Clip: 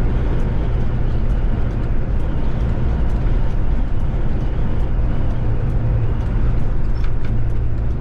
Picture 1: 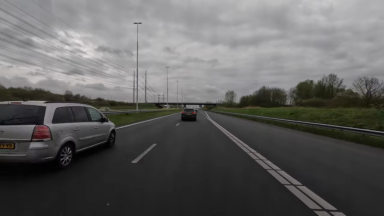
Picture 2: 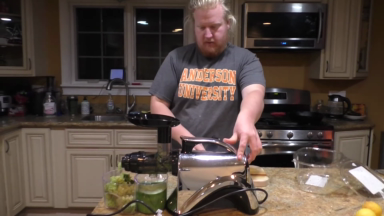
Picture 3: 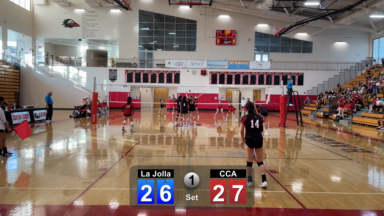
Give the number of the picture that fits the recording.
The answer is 1